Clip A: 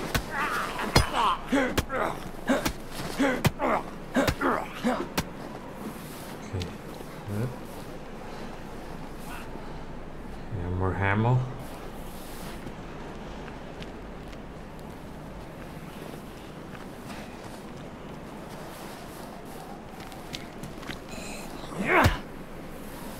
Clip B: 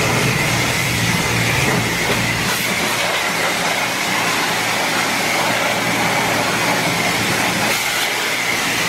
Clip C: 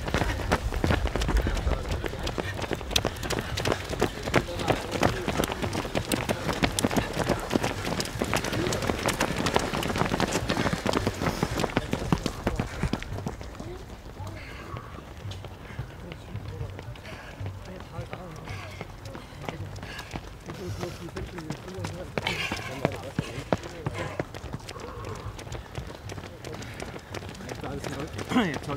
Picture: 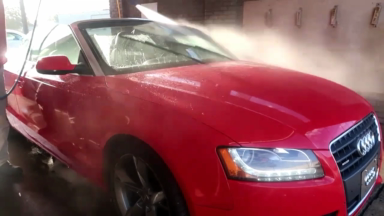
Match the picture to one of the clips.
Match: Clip B